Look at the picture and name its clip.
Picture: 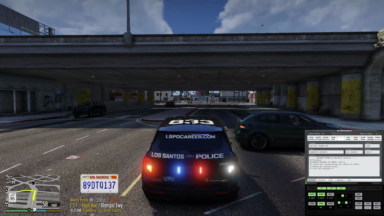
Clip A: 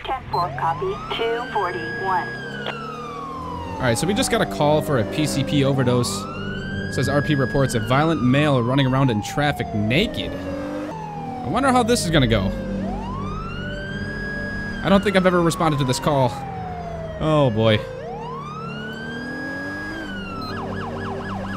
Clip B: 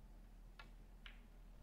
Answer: A